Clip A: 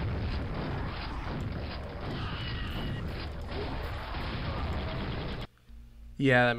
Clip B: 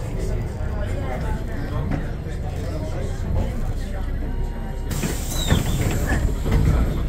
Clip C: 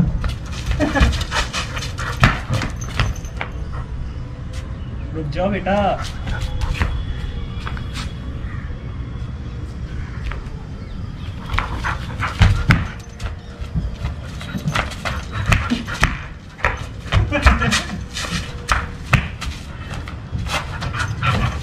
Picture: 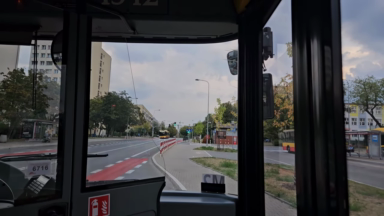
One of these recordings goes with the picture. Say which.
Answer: B